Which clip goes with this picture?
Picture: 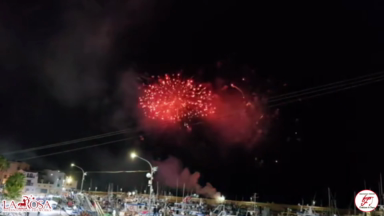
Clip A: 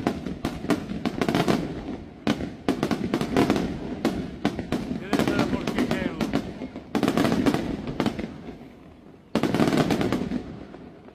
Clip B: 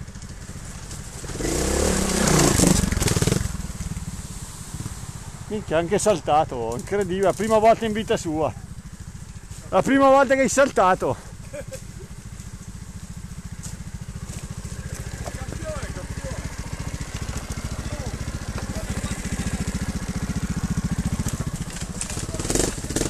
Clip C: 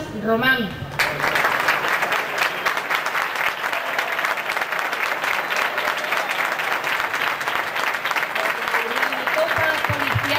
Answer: A